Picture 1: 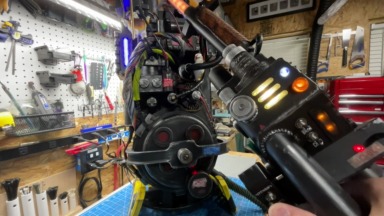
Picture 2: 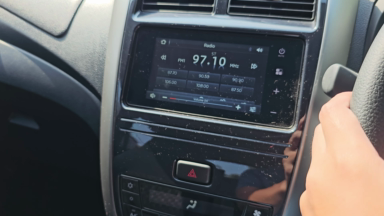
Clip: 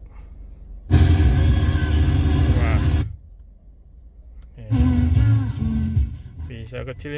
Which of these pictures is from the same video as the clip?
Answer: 2